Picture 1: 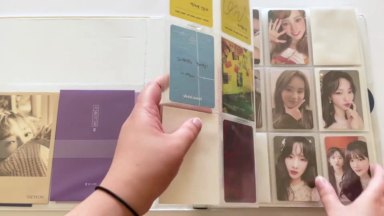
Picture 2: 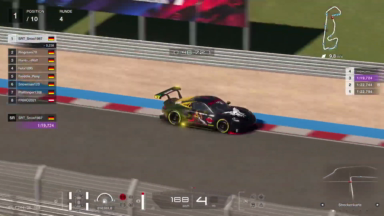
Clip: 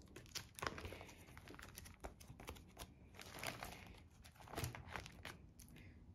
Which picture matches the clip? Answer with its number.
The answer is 1